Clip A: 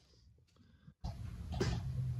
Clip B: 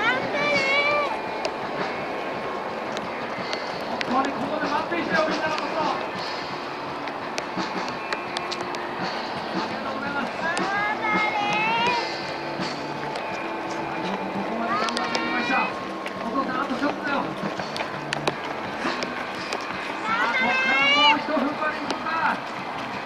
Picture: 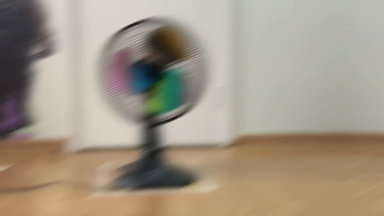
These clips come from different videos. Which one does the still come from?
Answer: A